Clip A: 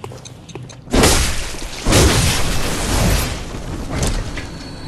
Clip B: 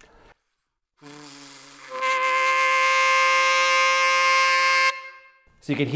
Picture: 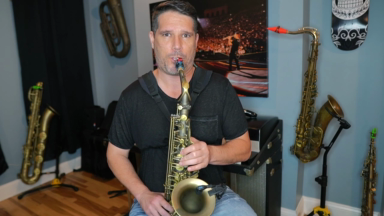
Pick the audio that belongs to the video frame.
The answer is B